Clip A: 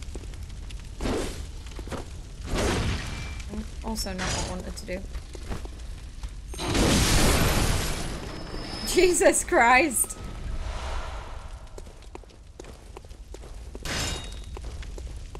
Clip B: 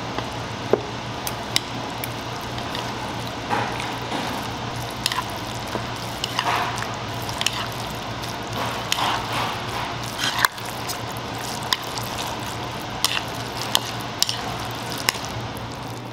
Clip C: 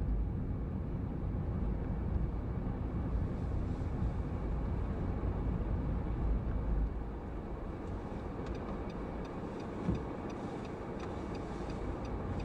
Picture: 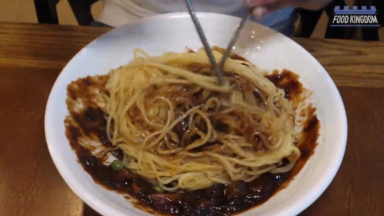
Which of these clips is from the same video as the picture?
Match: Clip B